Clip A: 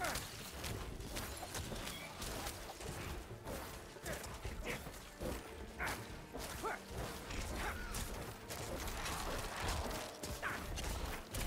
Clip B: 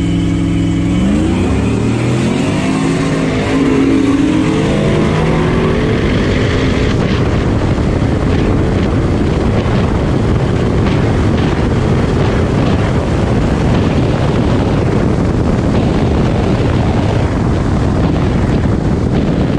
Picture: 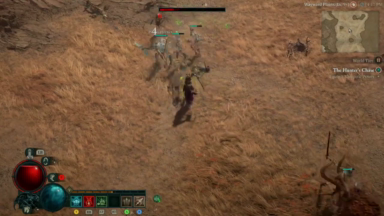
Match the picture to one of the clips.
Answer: A